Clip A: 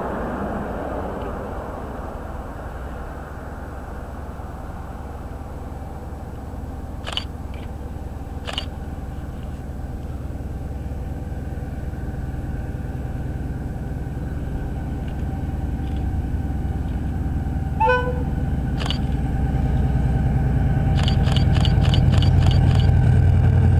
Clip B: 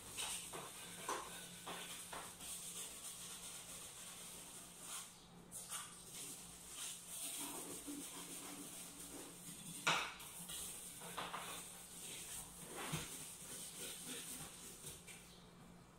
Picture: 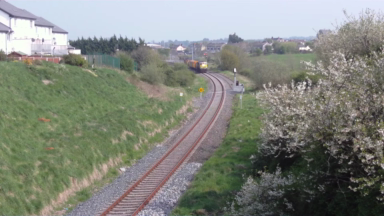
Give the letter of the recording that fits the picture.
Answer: A